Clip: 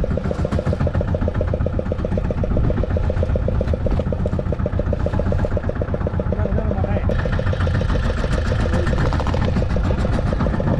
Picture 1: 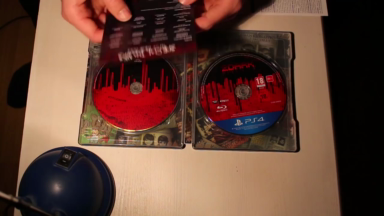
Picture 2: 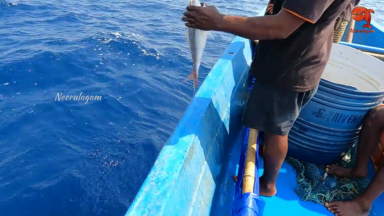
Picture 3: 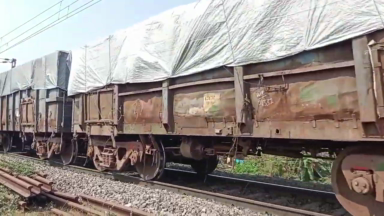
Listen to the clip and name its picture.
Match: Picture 2